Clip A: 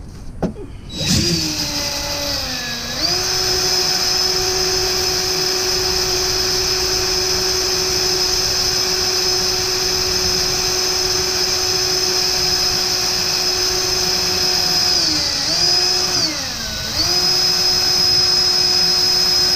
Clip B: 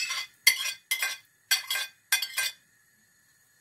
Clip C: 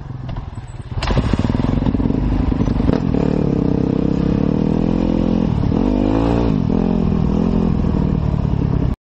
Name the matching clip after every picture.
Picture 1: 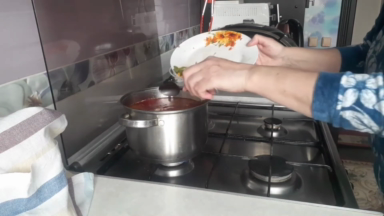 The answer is B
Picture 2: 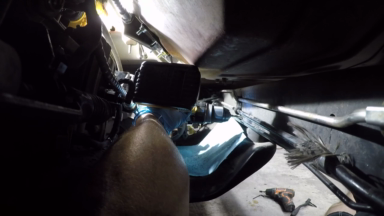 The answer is A